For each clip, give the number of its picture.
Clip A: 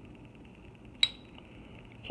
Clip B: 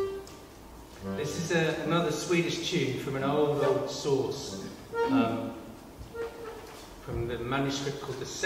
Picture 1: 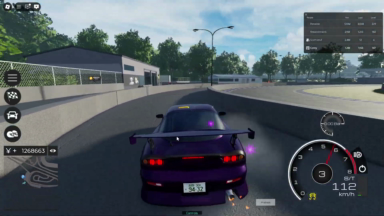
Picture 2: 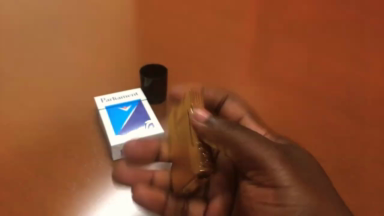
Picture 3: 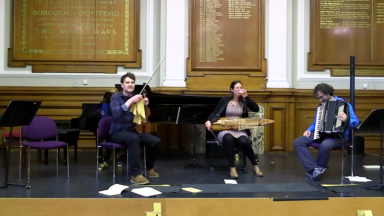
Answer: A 2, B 3